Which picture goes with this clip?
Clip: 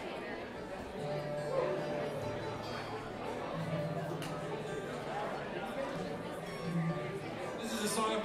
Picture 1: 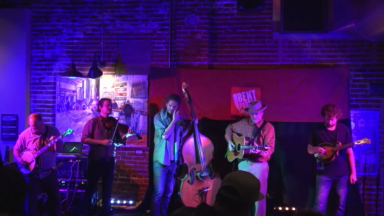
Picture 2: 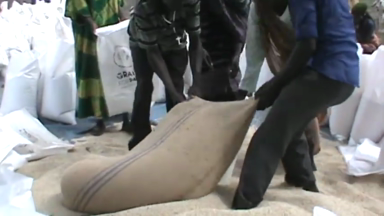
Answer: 1